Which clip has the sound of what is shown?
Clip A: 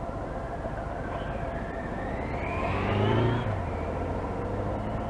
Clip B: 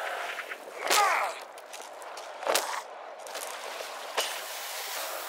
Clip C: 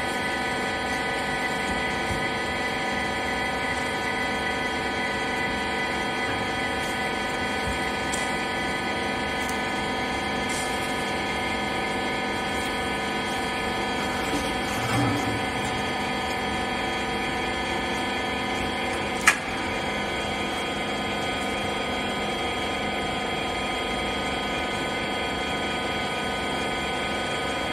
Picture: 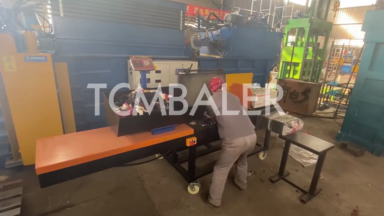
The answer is C